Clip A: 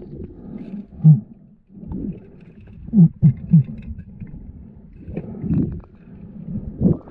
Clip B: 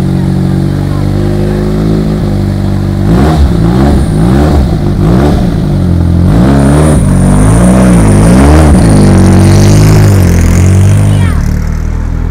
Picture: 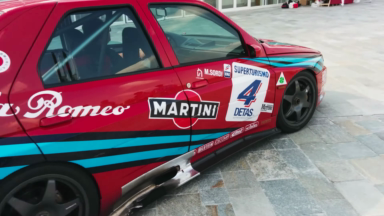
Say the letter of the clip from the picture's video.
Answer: B